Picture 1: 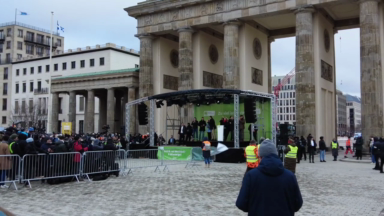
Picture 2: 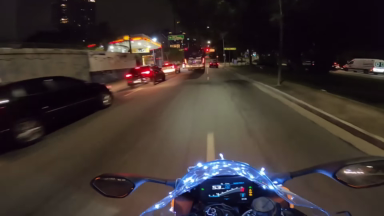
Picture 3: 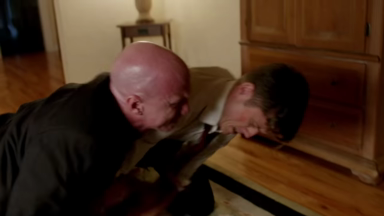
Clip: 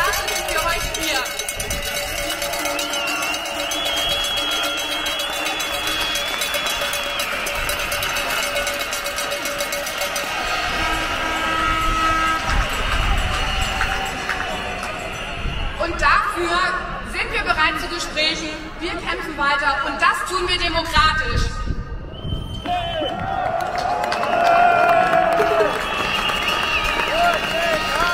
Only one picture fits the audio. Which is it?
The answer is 1